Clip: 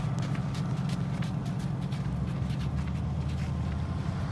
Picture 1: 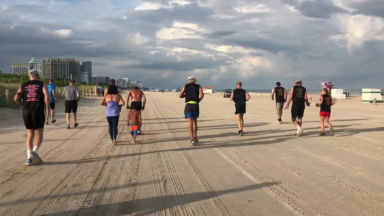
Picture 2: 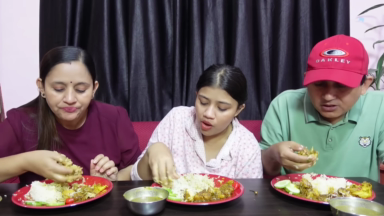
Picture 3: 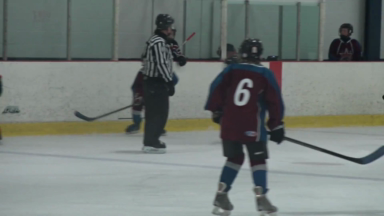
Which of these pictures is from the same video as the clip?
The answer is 1